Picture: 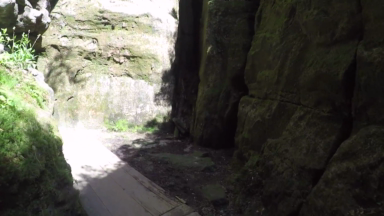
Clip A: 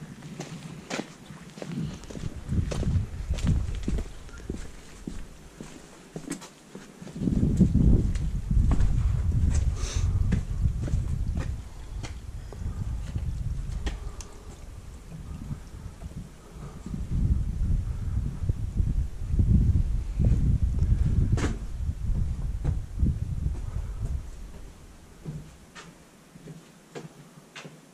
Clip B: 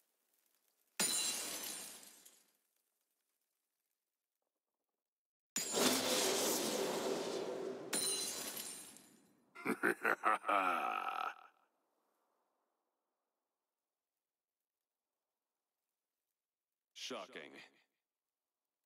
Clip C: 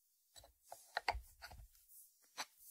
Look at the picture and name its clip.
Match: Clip A